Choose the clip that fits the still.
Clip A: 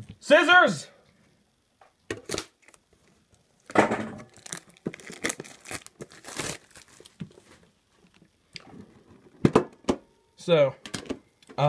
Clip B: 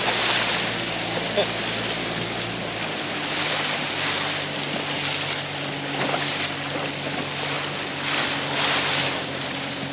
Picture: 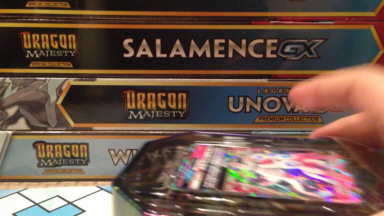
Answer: A